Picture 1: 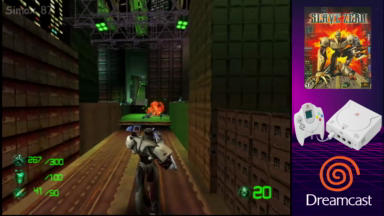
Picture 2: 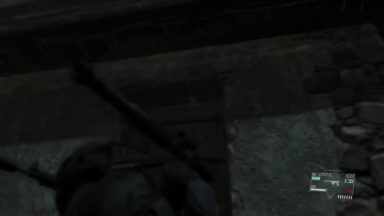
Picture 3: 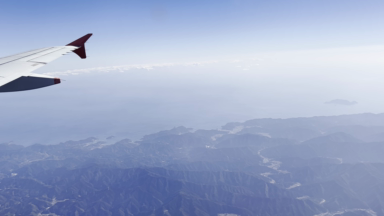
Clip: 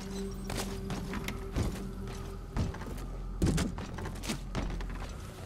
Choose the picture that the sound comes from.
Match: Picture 2